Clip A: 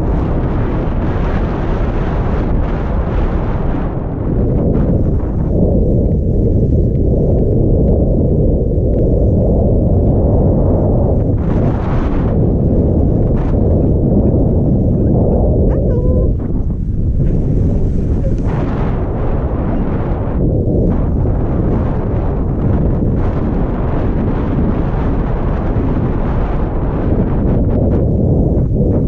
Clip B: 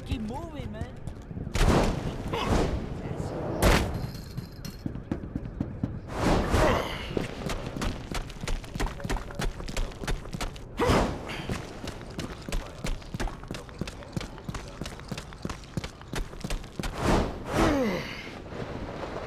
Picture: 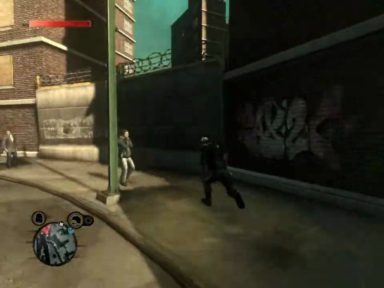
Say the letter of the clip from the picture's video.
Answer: B